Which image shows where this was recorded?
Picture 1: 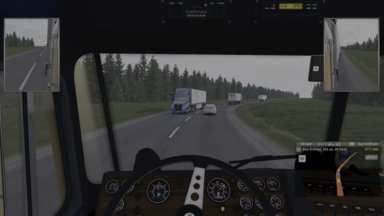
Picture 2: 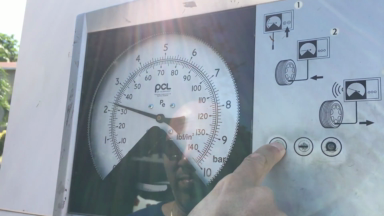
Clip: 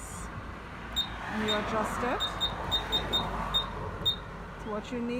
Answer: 2